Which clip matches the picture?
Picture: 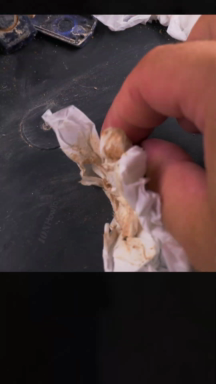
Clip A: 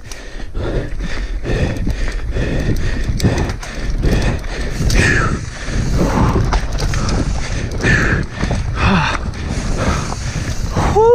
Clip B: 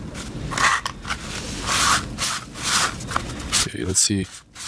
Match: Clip B